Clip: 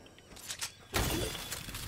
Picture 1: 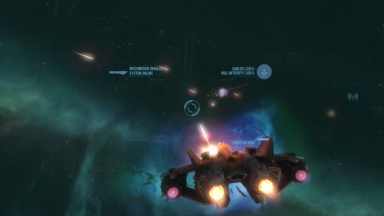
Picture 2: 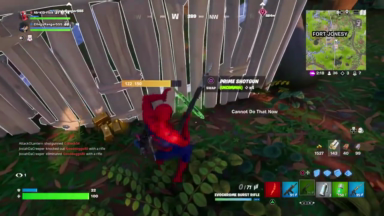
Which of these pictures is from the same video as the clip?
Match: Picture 2